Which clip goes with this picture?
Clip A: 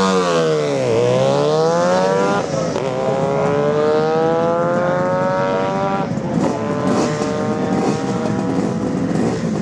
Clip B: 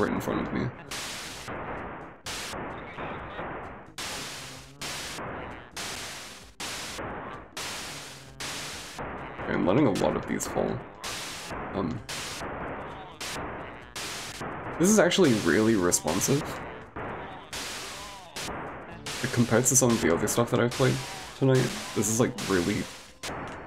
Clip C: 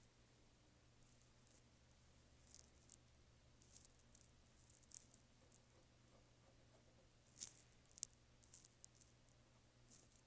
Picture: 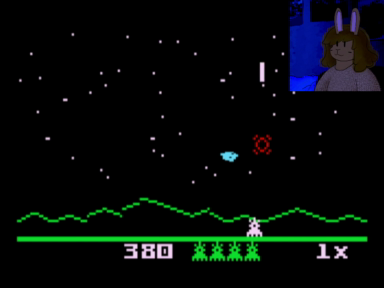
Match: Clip B